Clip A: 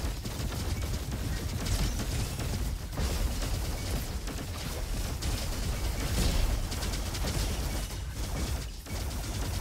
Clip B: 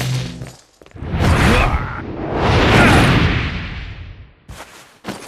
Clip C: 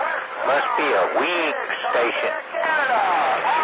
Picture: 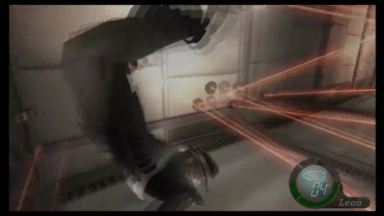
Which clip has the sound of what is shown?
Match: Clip B